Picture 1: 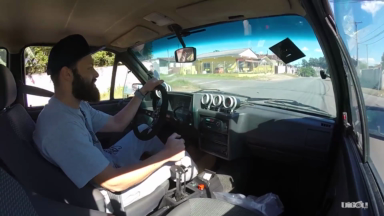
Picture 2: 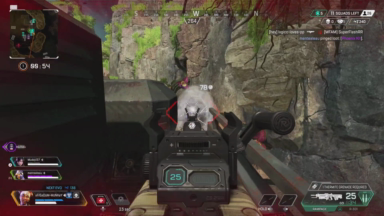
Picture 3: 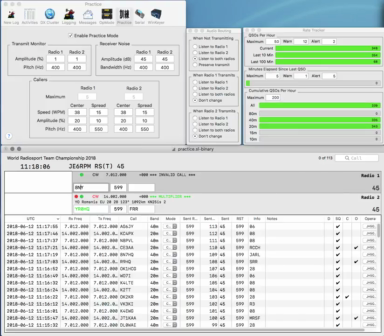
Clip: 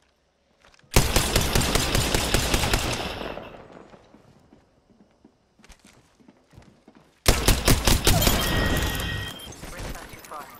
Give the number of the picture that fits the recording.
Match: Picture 2